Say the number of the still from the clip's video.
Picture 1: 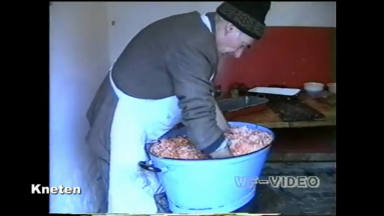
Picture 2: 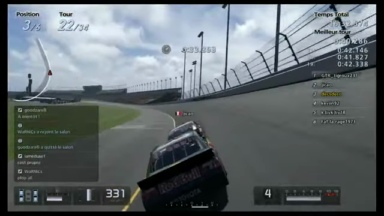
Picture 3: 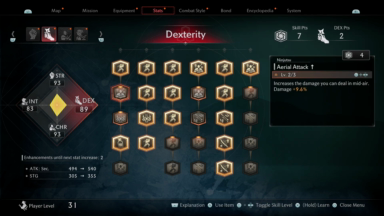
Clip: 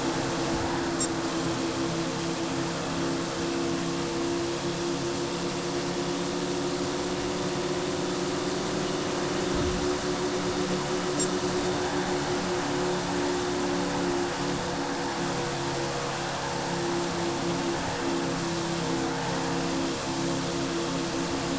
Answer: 2